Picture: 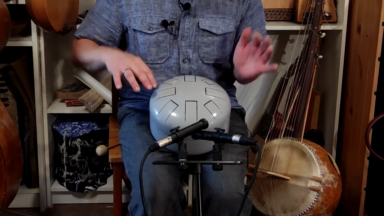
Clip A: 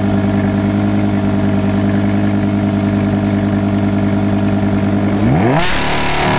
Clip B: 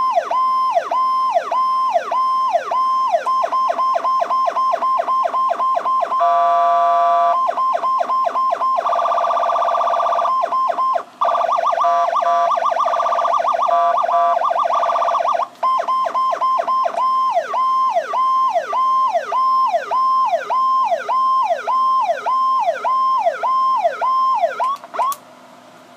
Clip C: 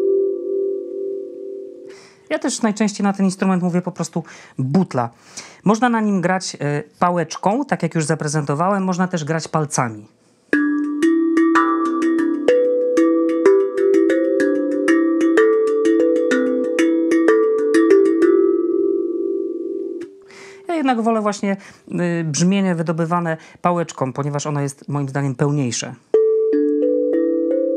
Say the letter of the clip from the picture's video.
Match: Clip C